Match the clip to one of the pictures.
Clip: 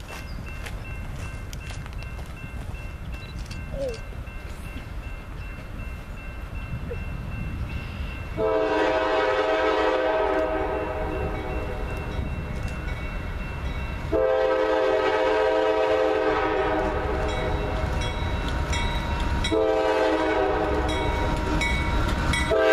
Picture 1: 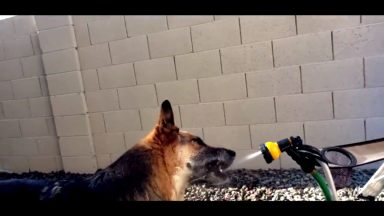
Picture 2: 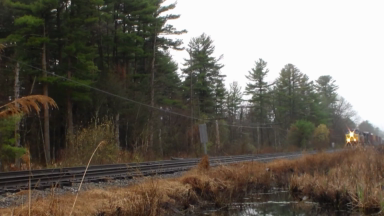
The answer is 2